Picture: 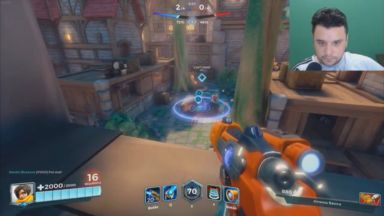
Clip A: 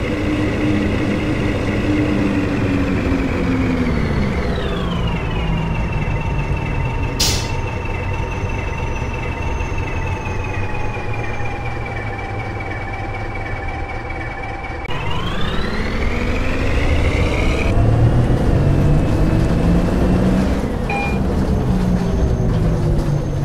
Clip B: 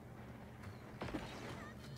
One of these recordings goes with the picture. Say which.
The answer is B